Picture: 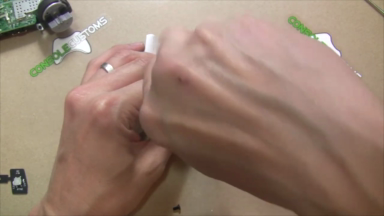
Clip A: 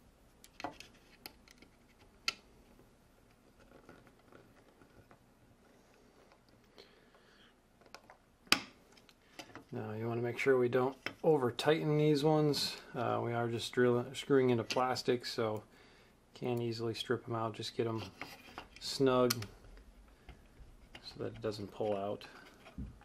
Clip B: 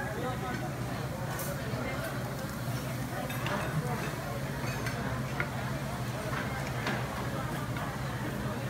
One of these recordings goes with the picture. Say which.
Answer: A